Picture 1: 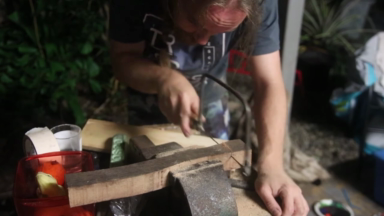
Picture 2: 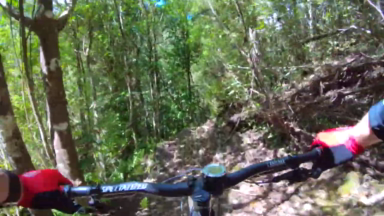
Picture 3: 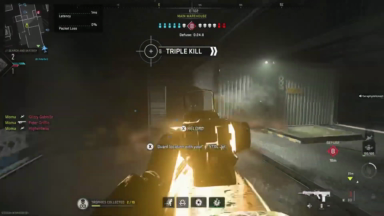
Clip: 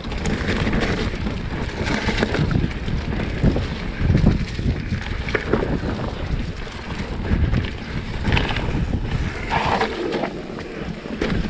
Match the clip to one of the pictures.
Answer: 2